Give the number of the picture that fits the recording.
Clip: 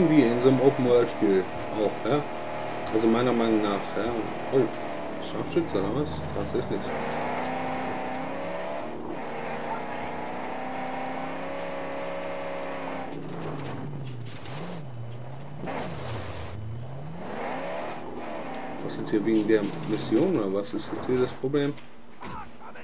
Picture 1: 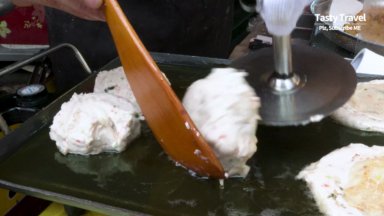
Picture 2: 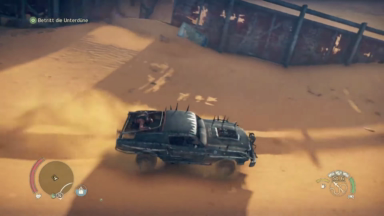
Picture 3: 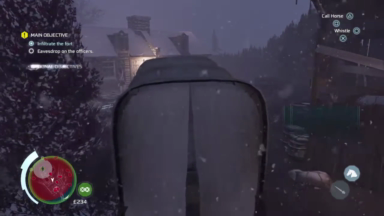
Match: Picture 2